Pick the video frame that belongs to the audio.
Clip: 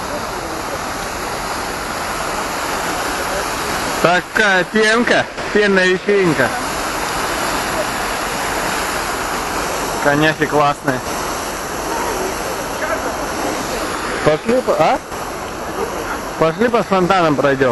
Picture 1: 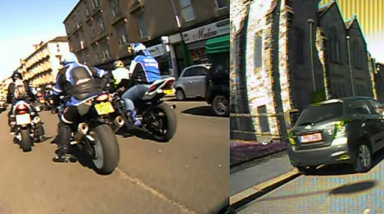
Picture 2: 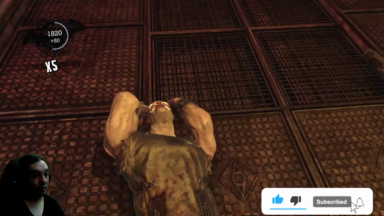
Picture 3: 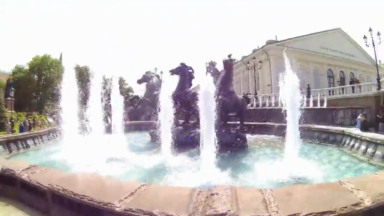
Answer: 3